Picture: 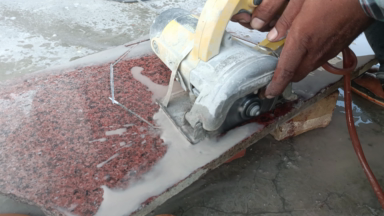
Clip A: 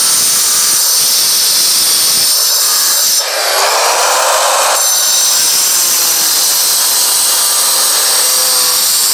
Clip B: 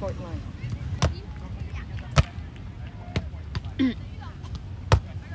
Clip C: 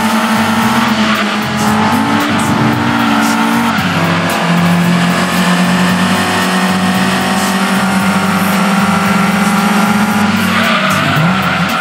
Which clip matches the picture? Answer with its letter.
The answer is A